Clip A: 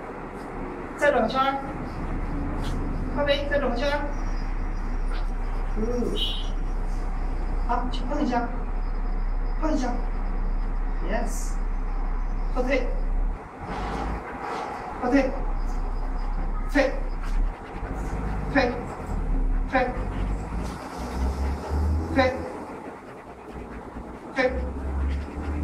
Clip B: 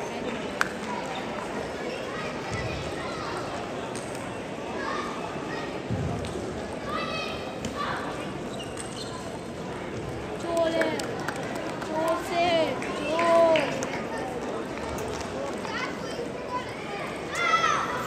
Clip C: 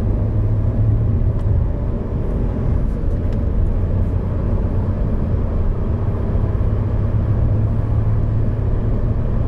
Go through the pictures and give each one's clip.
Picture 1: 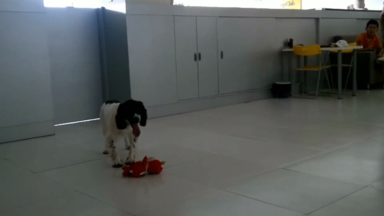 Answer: A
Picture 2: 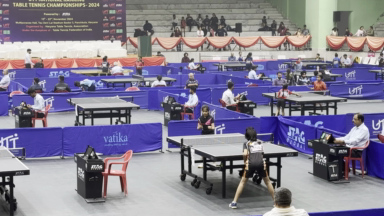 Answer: B